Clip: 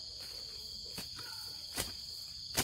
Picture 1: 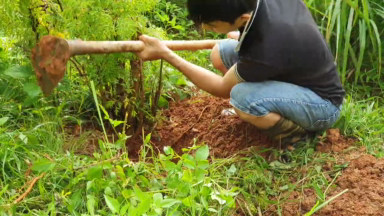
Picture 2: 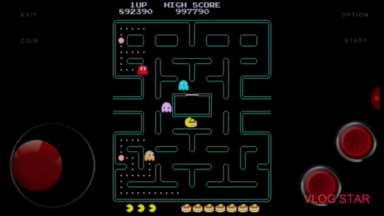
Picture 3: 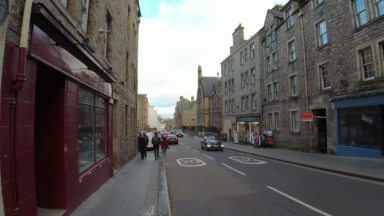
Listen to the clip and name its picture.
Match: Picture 1